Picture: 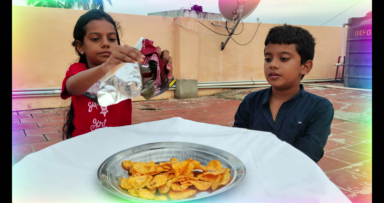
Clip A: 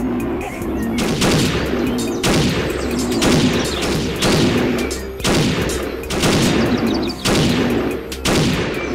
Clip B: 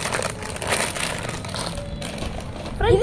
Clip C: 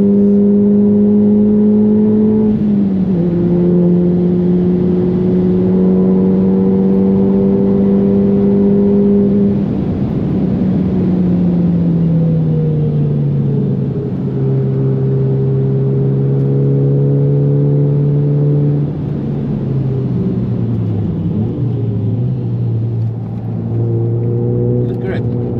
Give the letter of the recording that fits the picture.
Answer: B